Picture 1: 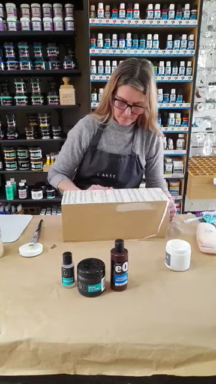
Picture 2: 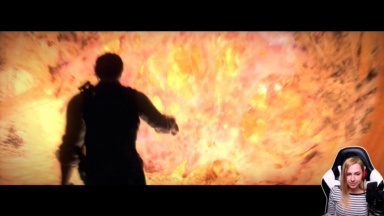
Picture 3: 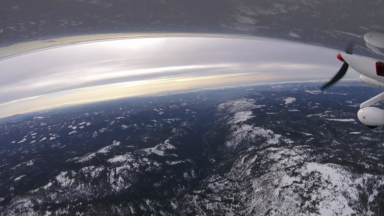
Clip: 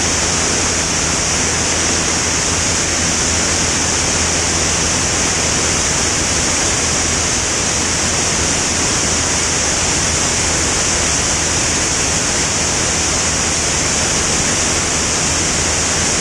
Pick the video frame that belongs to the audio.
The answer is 3